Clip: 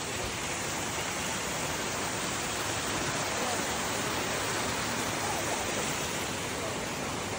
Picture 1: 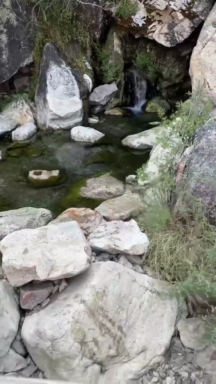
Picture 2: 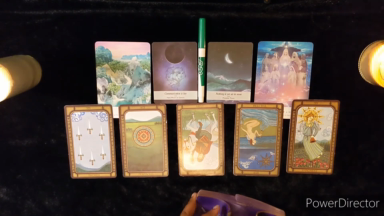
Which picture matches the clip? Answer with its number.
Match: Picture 1